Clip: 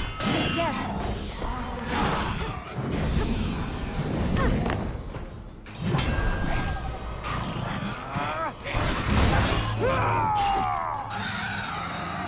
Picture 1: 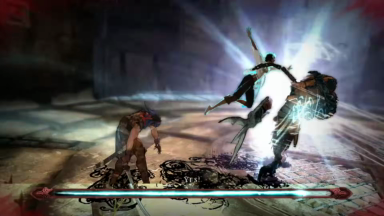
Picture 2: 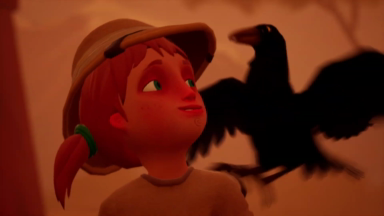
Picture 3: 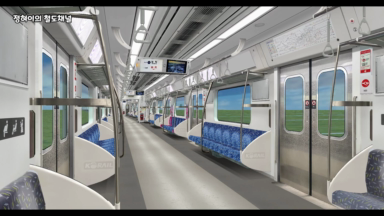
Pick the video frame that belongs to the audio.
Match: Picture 1